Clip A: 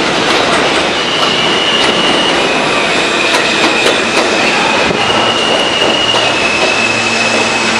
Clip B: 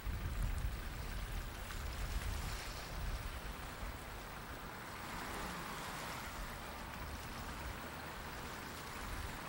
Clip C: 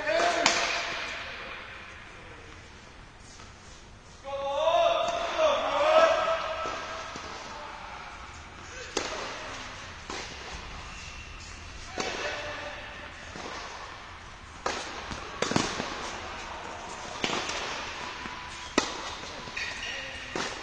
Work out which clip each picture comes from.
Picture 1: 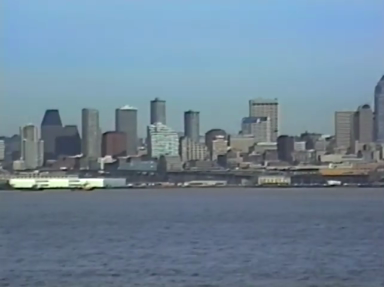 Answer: B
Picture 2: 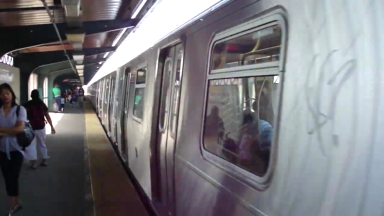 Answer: A